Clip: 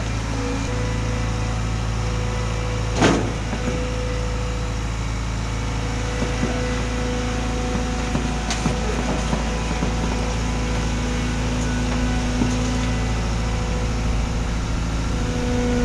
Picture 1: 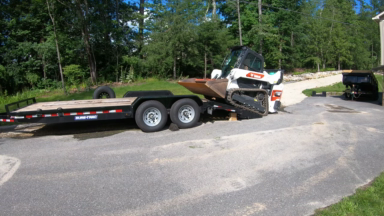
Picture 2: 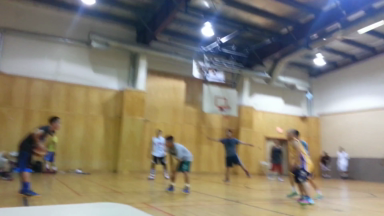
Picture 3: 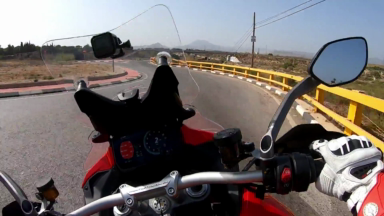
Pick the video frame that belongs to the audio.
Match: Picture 1